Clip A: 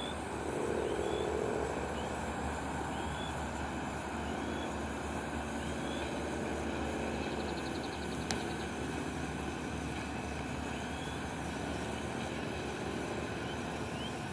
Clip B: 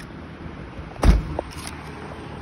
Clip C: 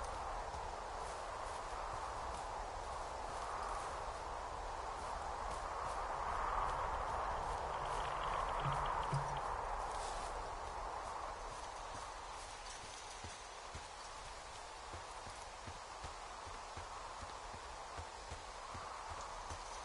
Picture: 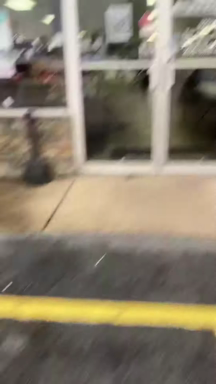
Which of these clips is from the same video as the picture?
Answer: B